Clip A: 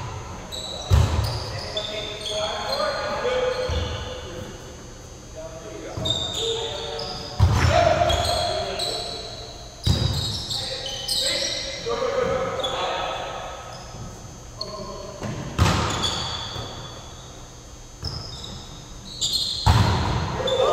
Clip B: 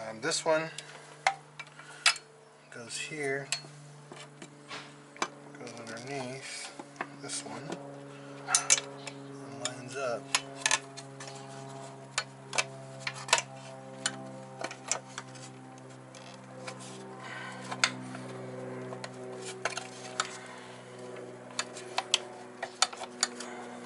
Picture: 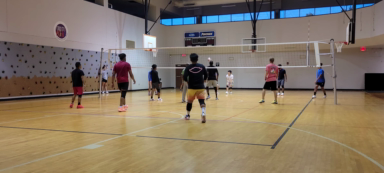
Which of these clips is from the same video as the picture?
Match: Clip A